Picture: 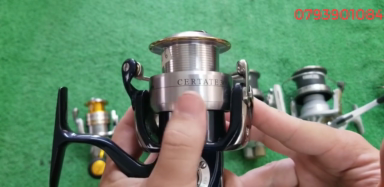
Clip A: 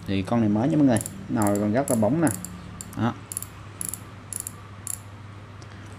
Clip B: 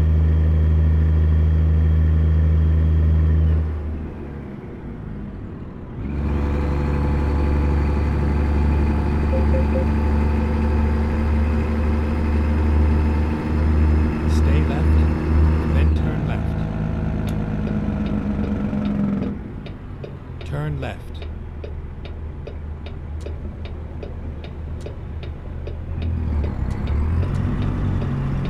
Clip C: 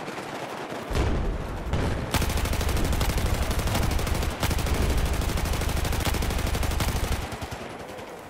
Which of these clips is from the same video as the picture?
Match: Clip A